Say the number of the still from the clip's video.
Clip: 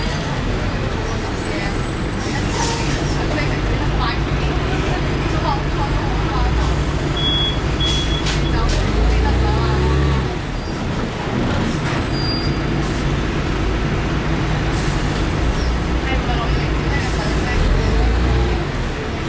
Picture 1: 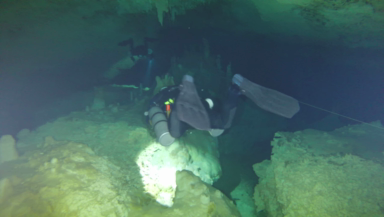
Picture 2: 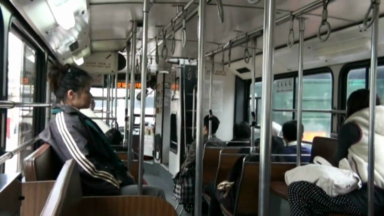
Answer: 2